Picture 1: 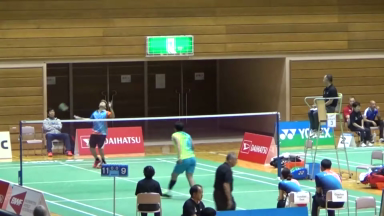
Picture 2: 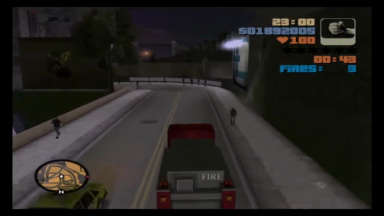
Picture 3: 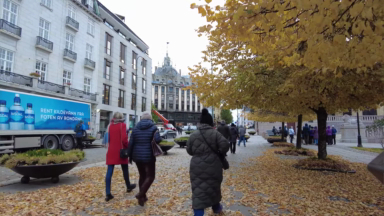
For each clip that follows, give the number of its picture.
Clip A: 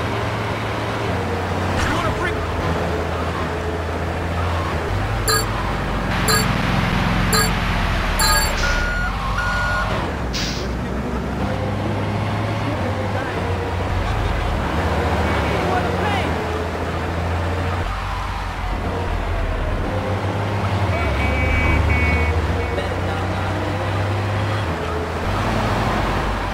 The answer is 2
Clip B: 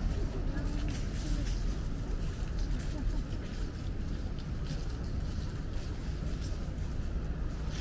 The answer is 3